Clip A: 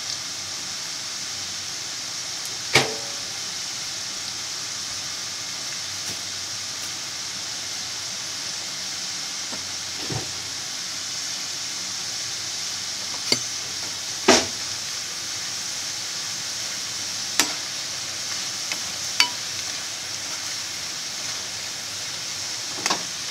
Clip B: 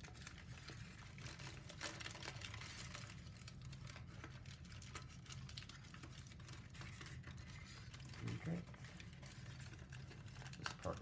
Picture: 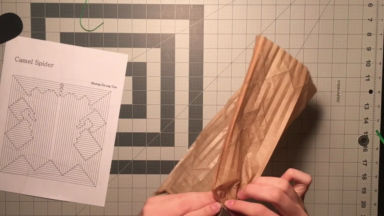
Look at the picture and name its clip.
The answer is B